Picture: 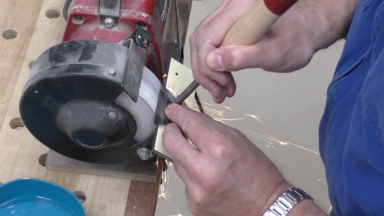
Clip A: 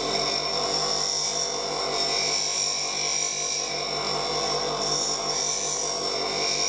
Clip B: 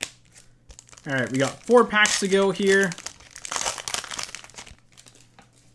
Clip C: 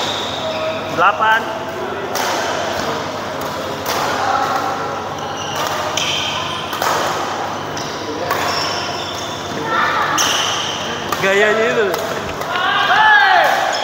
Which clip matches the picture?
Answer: A